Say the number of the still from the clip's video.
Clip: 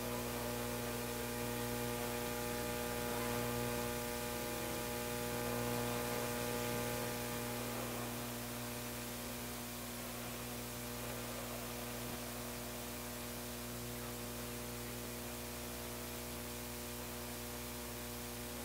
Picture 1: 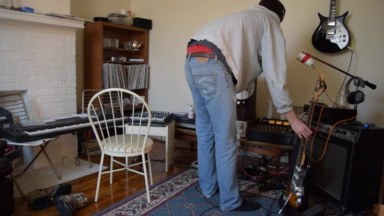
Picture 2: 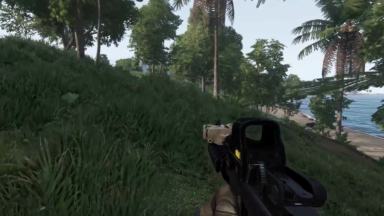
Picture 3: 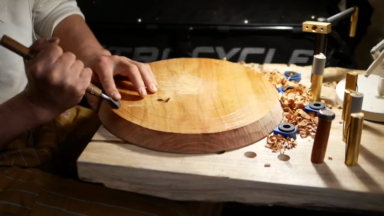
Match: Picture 1